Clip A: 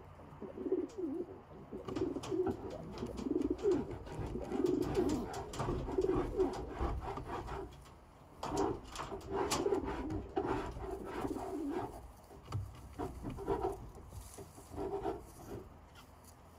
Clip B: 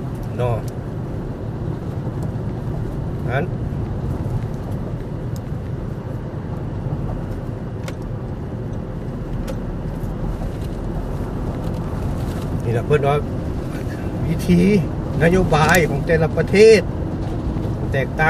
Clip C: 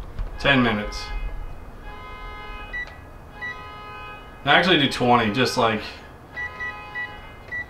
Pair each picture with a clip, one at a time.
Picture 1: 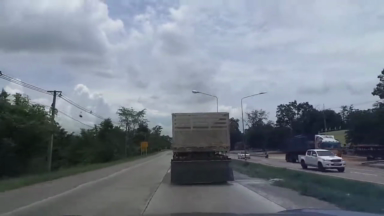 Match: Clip B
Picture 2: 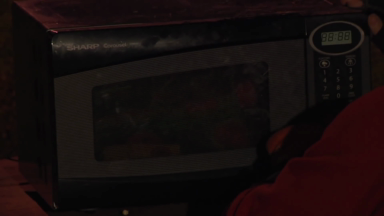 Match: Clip C